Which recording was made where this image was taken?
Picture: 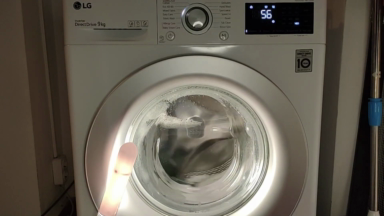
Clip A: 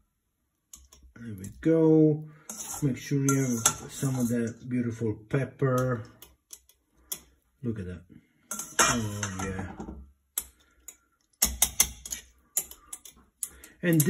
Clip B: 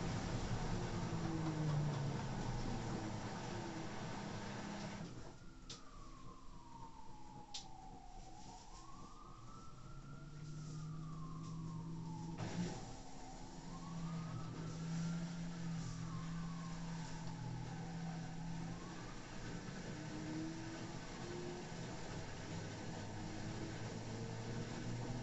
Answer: B